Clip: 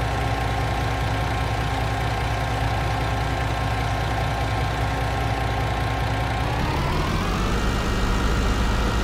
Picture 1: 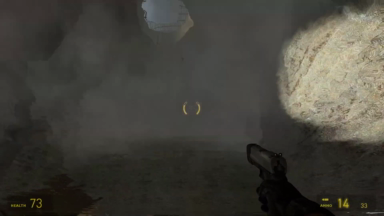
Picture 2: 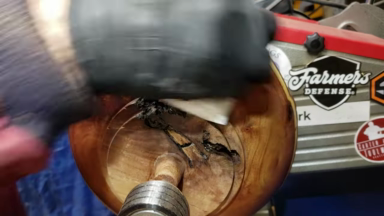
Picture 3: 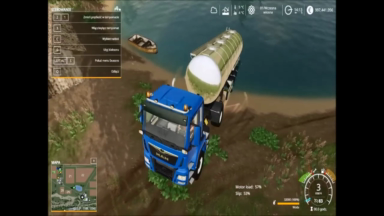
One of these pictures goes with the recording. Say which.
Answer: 3